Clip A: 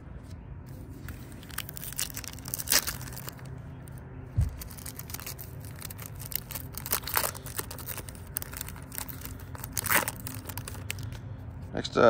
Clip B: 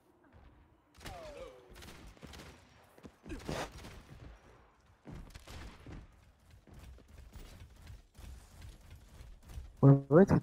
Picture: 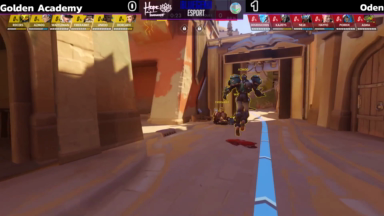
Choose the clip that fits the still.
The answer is B